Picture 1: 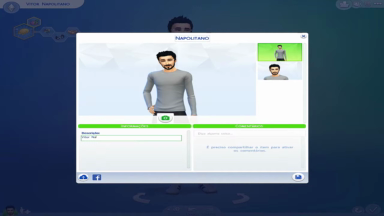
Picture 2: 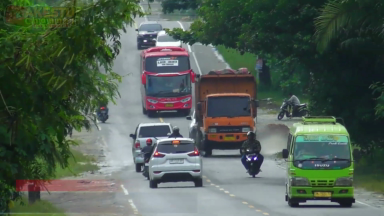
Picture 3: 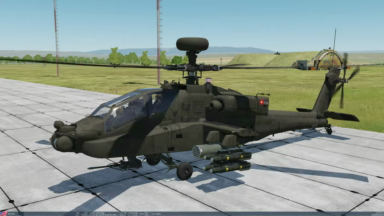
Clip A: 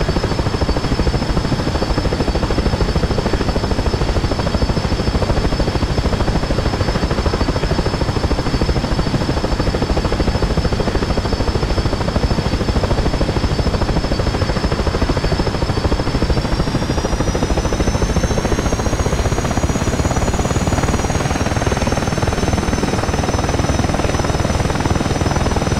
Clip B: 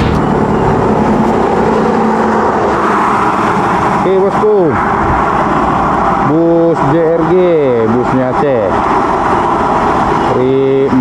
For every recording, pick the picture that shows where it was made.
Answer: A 3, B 2